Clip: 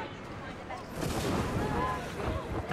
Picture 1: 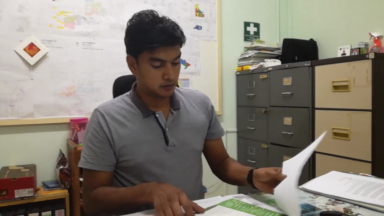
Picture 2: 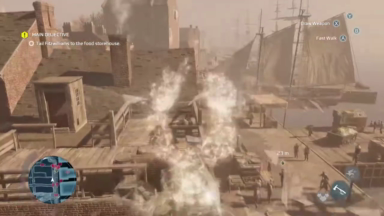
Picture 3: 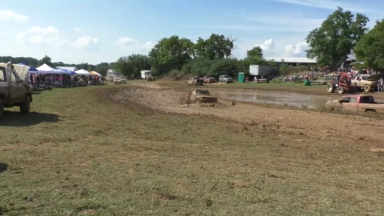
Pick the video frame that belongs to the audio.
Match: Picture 2